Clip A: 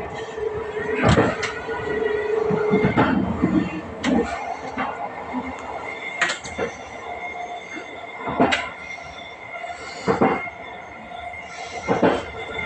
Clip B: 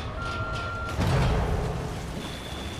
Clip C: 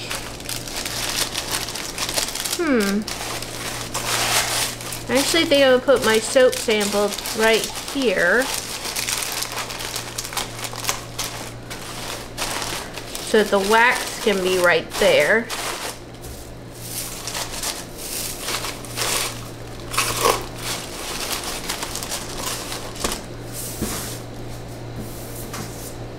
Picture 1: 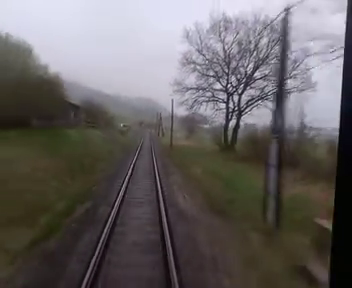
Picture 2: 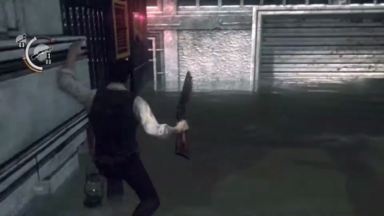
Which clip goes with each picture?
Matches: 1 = A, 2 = B